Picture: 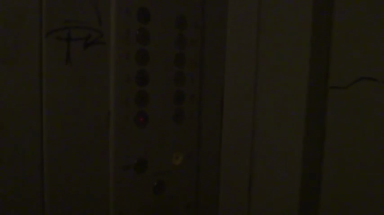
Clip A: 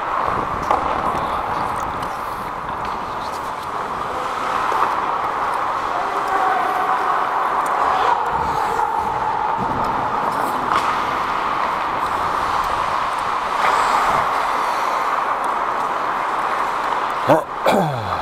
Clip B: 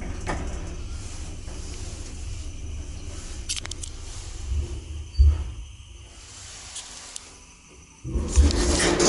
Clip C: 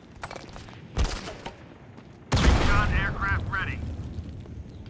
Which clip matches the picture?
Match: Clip B